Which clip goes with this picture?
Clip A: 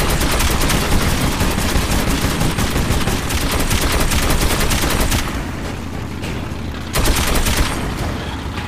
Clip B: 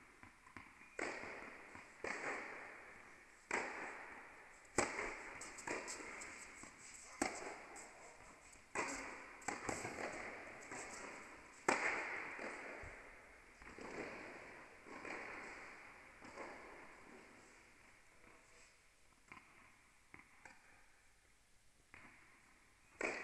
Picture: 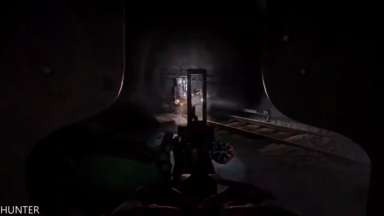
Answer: A